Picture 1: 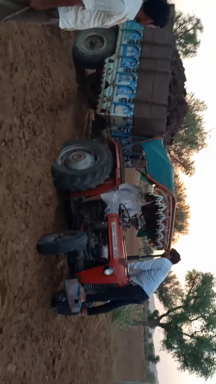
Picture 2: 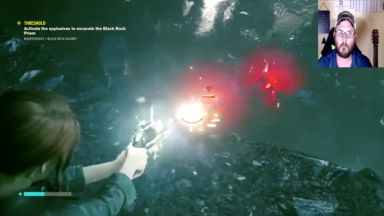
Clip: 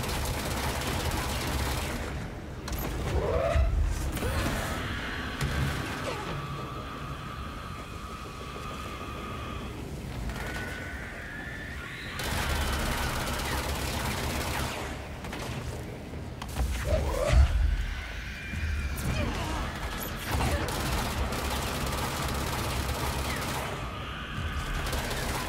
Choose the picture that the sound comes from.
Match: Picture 2